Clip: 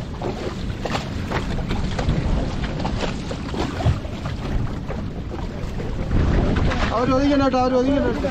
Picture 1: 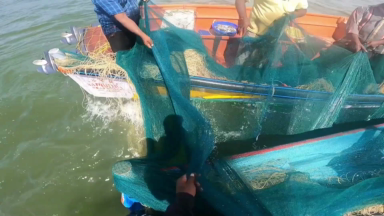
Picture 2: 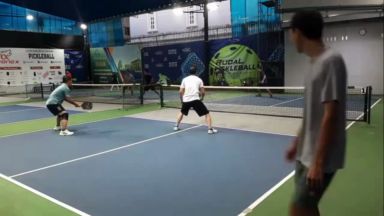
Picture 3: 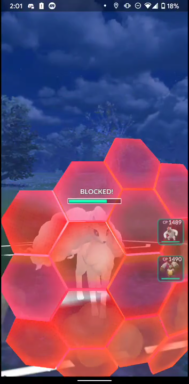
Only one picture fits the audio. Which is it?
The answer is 1